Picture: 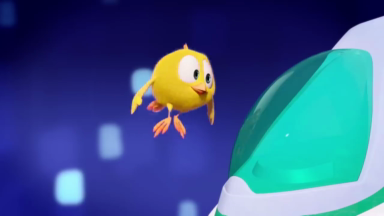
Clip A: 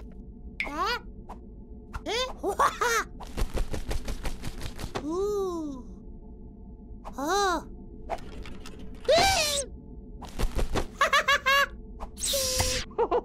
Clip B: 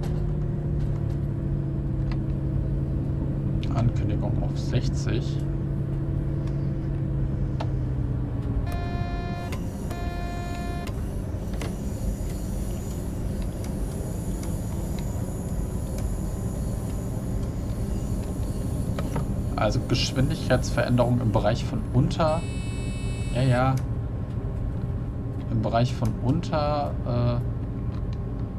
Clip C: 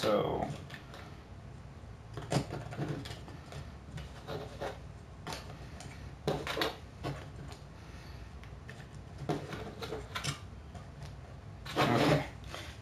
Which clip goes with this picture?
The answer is A